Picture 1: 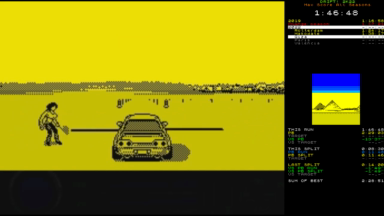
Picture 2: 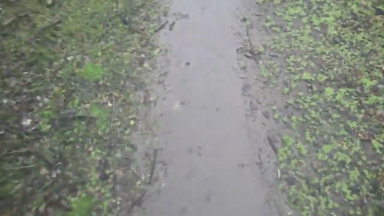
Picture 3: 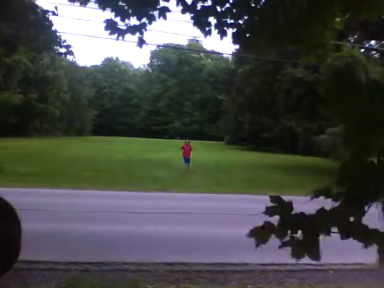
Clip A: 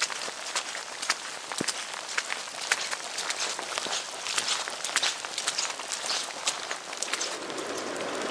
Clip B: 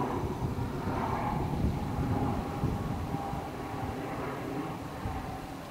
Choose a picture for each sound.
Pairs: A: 2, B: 3